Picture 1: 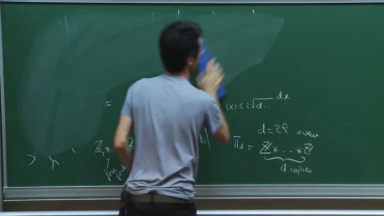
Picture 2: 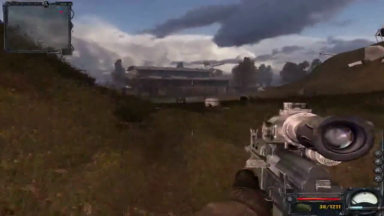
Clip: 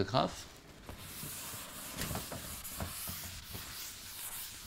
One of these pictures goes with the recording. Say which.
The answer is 1